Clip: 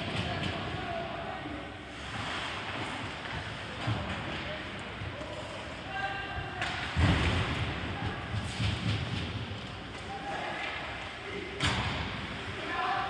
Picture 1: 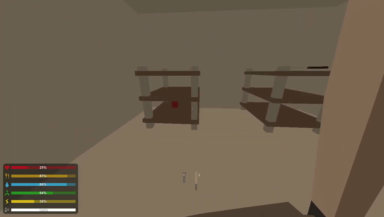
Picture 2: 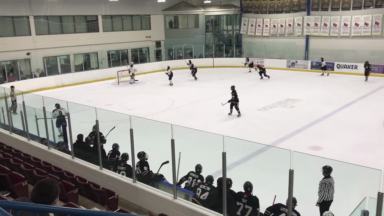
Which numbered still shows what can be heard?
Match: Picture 2